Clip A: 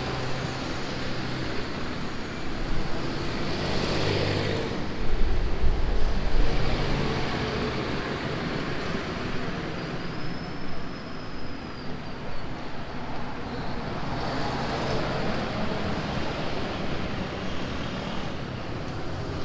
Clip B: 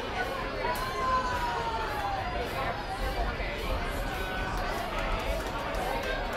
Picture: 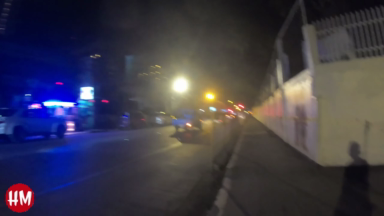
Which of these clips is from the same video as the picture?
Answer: A